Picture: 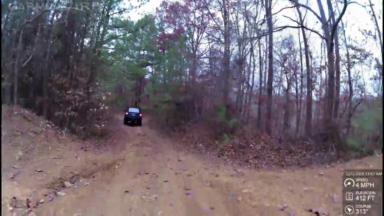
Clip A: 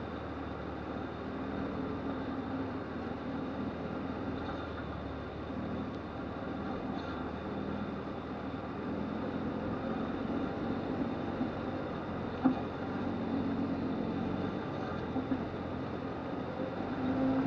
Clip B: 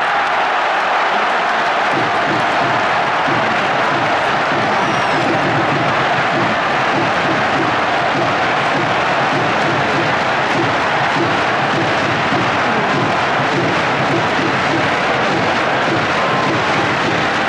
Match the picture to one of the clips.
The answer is A